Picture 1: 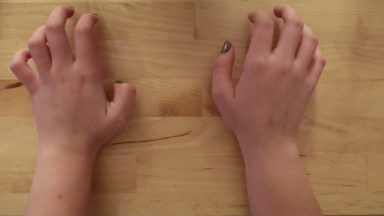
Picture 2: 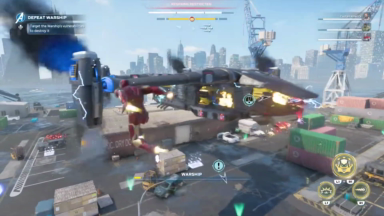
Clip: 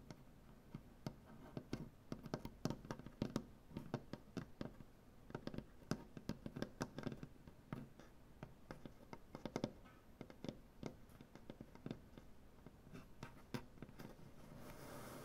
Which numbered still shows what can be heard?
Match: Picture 1